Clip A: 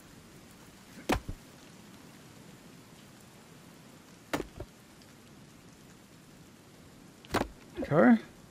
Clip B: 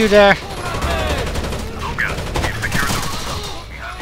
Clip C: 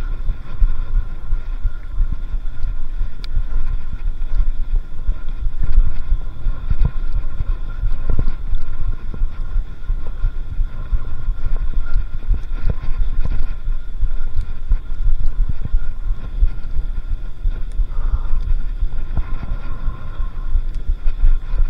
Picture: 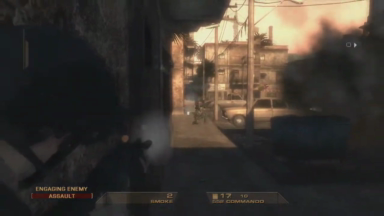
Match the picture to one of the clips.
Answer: B